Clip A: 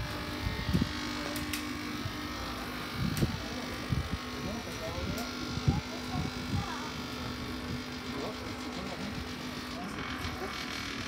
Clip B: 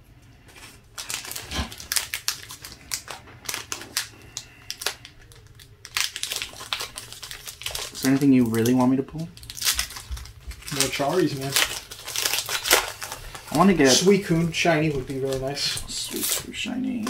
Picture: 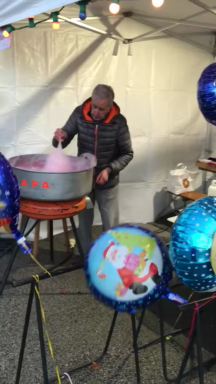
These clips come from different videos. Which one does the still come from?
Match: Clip A